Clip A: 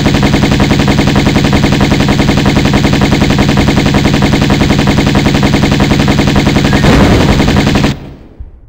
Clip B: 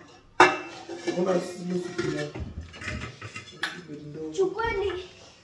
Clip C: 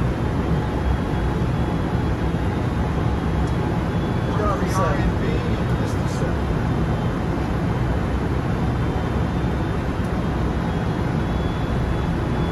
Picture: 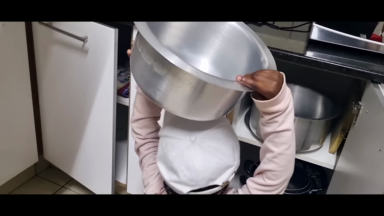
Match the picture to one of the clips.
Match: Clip B